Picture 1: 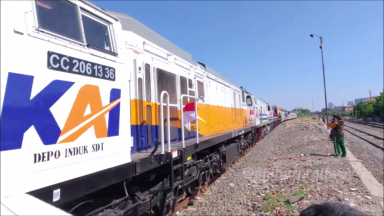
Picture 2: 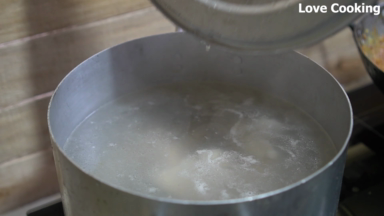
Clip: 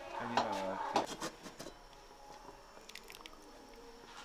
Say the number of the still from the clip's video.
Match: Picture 2